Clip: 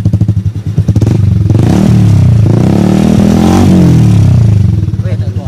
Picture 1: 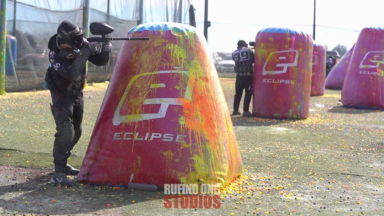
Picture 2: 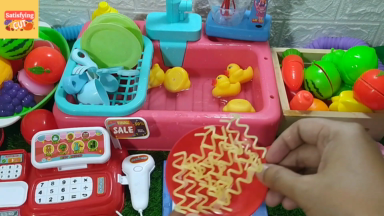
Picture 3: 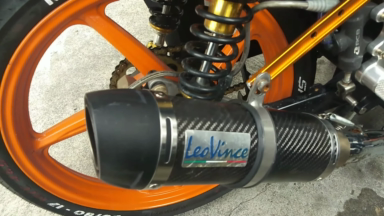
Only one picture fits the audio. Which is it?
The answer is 3